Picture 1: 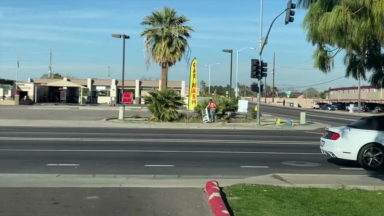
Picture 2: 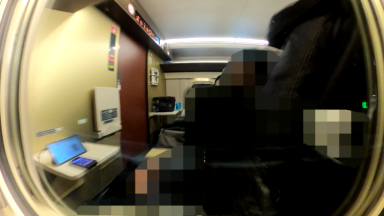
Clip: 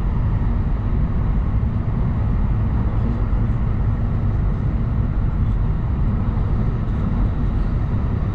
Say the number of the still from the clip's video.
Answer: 2